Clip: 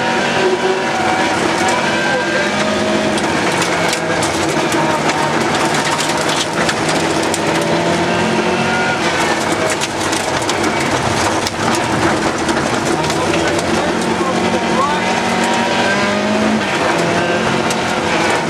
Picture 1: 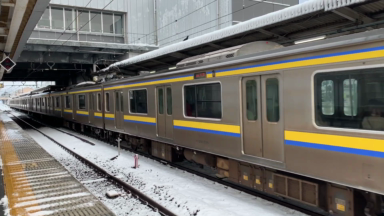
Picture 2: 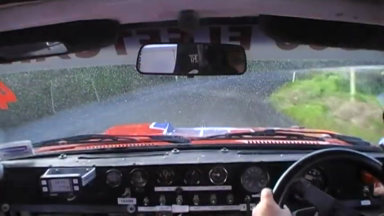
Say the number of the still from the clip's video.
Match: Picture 2